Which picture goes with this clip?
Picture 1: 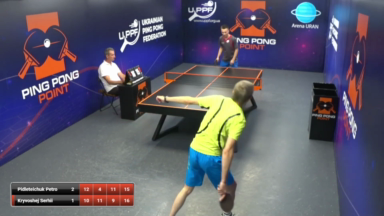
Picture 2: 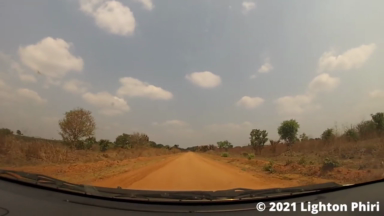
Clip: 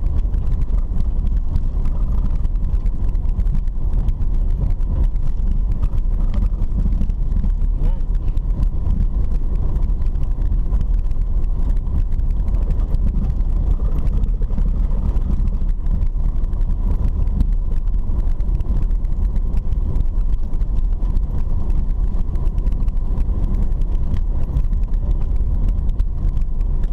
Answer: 2